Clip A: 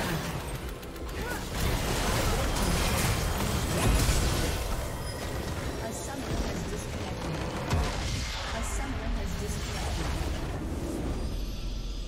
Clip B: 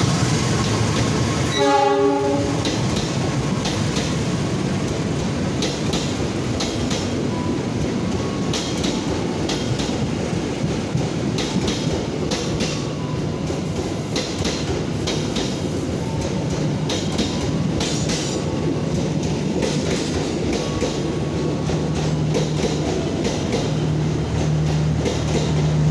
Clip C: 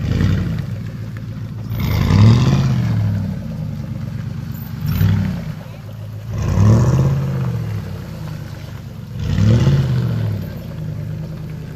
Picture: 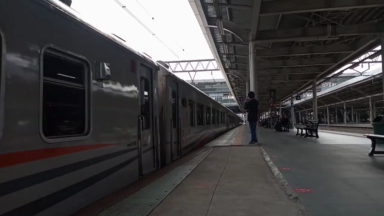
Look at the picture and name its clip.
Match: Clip B